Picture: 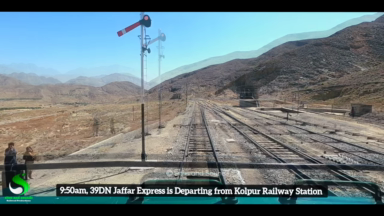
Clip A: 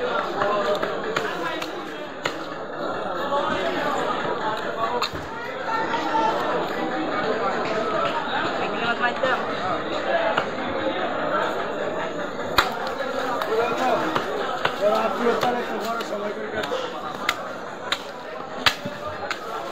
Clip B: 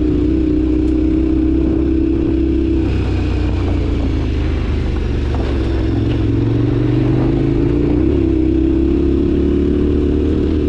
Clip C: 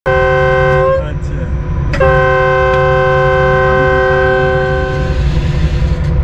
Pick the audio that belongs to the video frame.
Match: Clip C